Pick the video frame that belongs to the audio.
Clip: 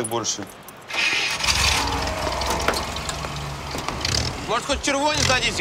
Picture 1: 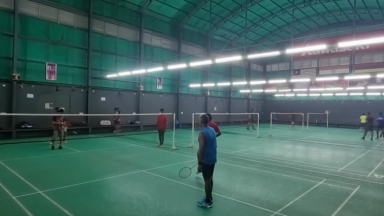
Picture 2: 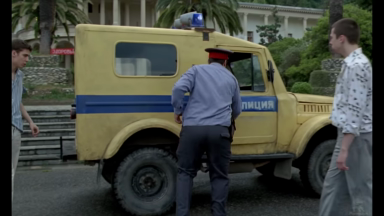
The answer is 2